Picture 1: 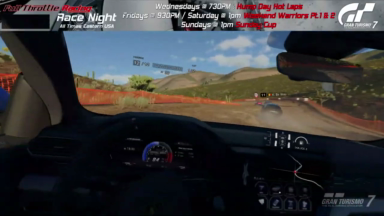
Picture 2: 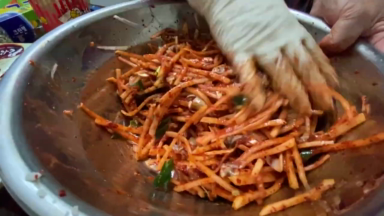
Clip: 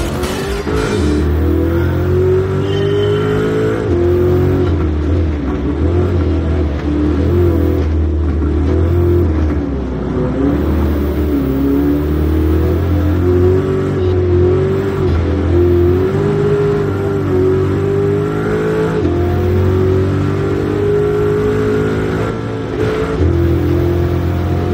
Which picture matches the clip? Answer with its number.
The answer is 1